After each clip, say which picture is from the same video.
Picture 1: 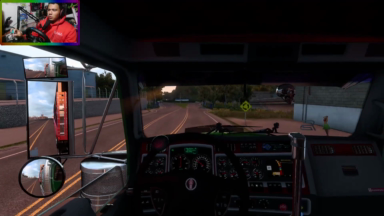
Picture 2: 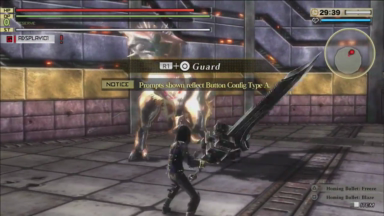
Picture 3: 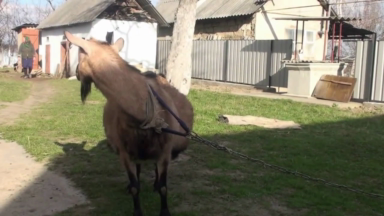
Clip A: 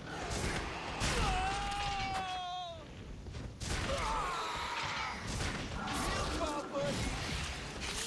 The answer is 2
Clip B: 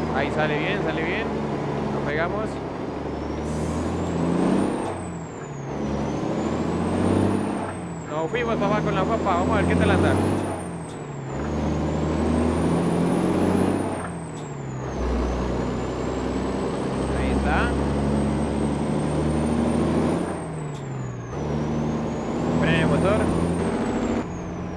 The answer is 1